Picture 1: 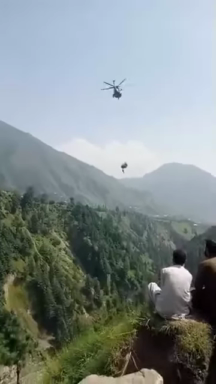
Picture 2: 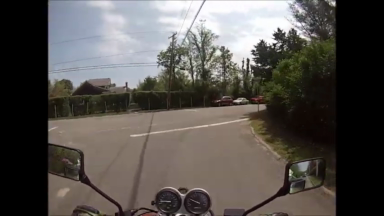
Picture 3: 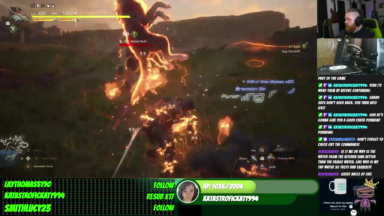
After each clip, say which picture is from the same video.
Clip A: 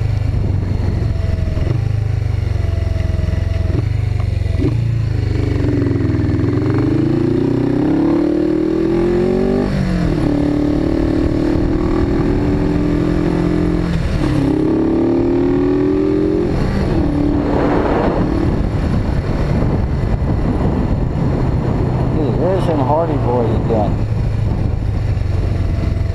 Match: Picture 2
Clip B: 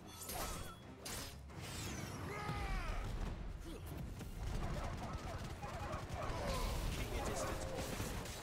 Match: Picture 3